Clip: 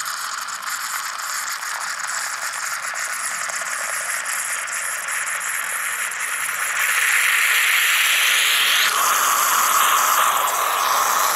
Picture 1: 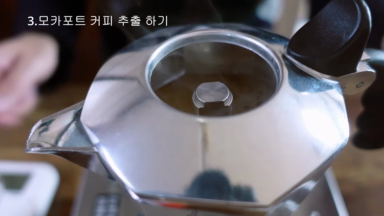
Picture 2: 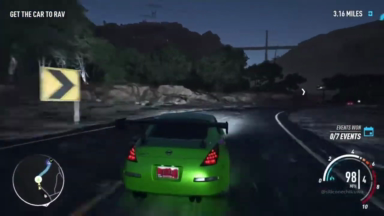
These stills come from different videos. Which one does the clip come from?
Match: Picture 1